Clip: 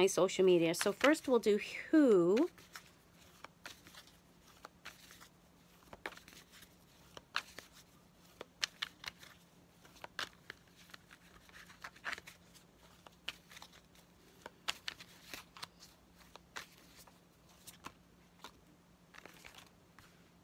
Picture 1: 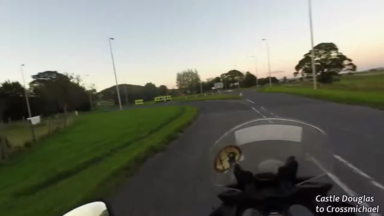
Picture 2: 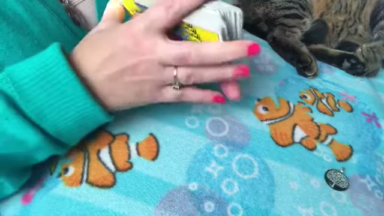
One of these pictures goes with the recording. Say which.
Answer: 2